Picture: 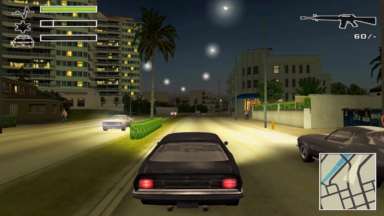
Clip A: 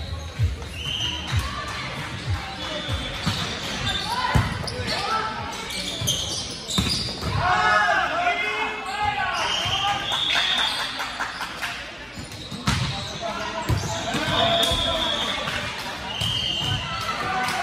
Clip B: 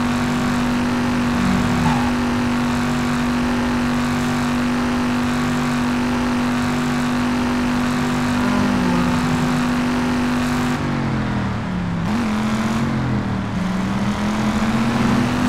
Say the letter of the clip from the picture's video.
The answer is B